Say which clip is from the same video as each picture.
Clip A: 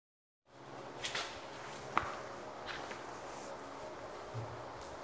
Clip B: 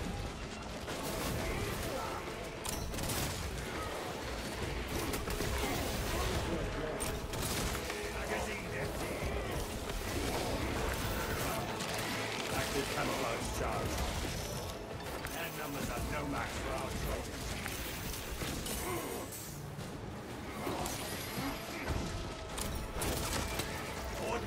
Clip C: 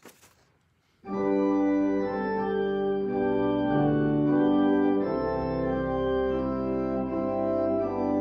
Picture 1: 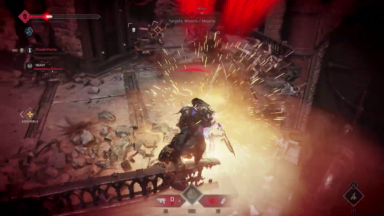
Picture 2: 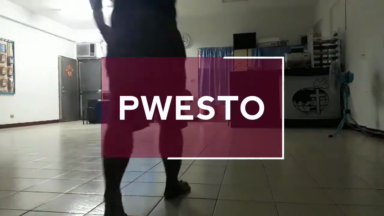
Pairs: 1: B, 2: A